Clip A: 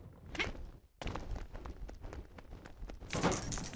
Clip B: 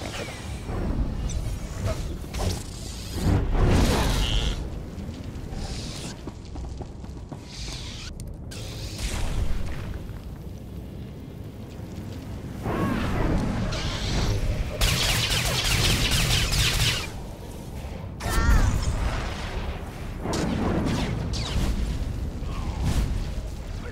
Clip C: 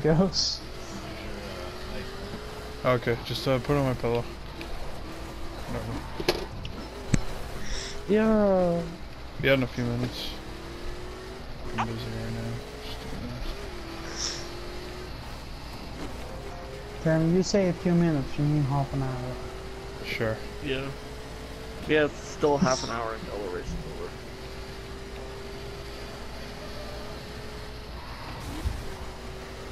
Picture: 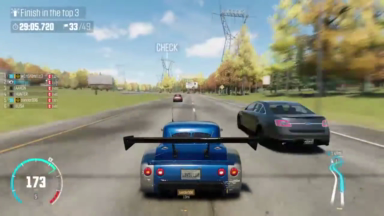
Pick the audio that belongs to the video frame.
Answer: C